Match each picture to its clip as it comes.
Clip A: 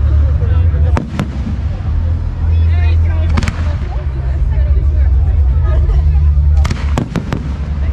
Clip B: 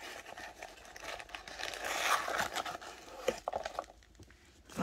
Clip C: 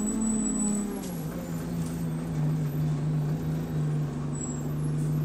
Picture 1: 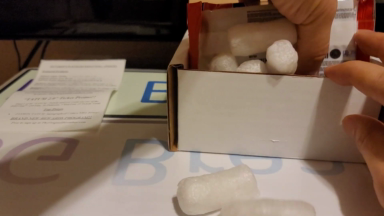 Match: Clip B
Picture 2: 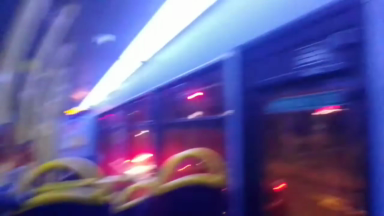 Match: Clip C